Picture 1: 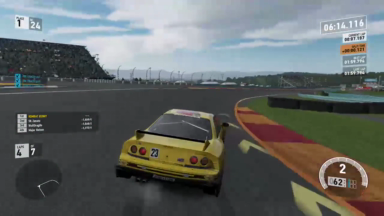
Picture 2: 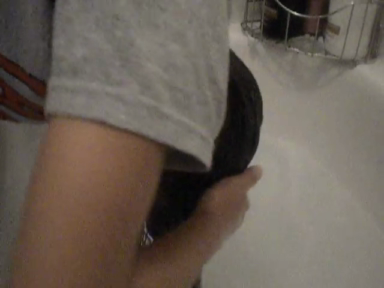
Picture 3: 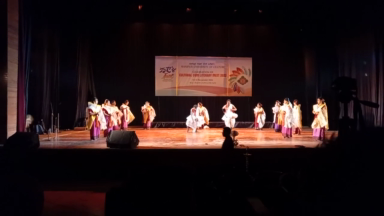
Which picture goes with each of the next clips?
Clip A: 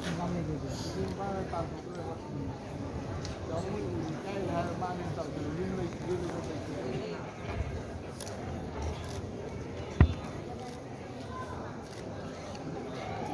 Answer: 3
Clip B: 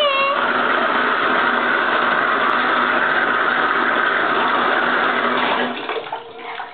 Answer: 2